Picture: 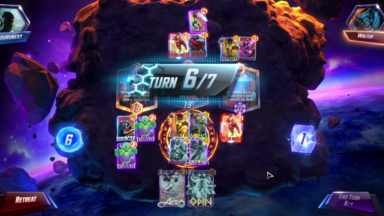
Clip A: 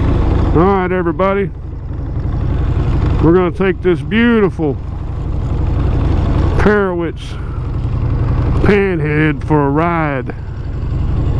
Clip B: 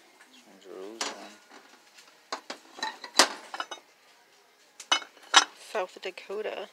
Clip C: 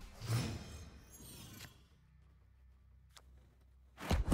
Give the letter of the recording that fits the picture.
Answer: C